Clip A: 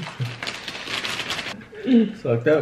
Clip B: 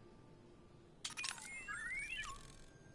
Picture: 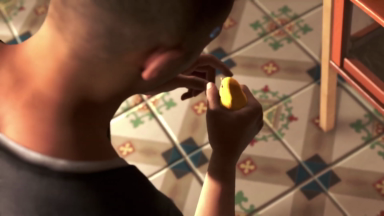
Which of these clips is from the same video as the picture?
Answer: B